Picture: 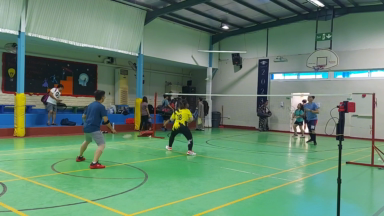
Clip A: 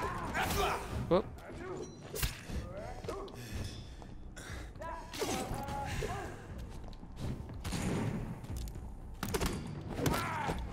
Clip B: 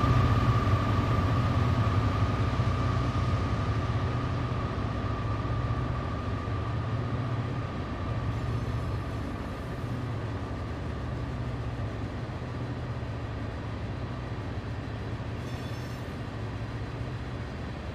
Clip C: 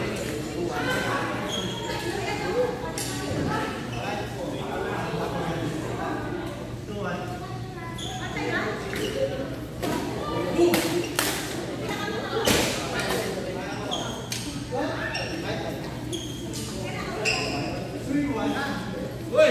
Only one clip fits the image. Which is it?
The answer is C